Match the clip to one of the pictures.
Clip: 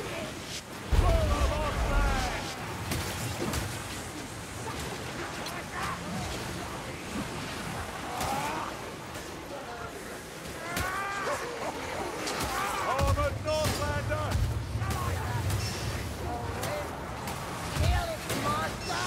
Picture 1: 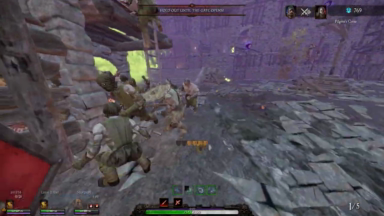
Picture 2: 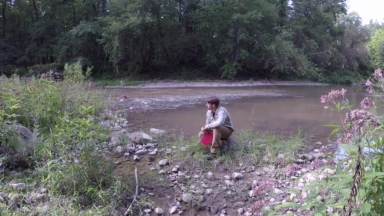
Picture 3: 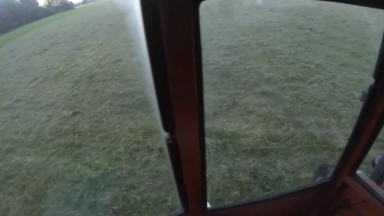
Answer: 1